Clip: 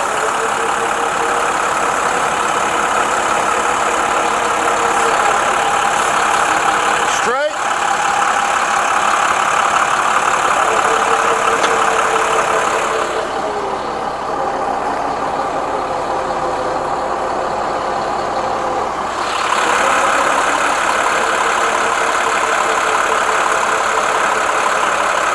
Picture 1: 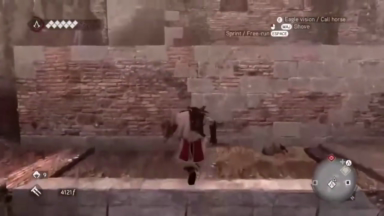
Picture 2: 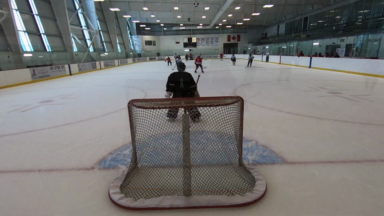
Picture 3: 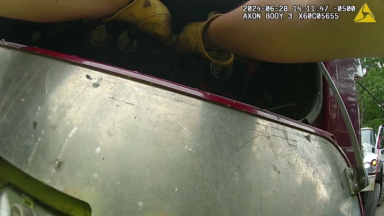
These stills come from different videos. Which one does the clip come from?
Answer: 3